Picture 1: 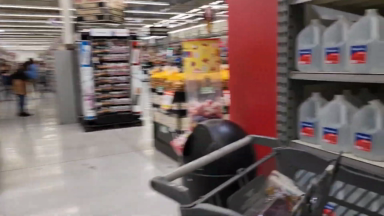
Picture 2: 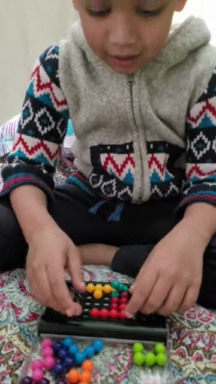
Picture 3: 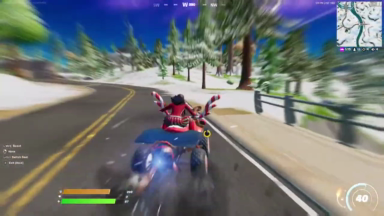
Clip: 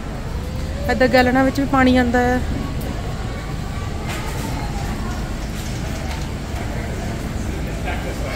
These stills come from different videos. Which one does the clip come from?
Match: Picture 1